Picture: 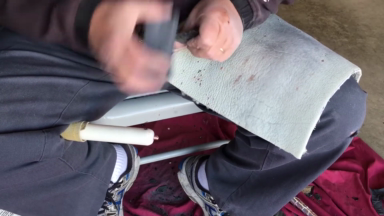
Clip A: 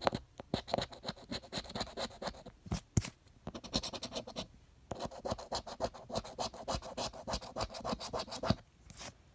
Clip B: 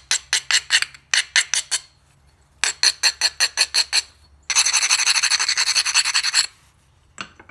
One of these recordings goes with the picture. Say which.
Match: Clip B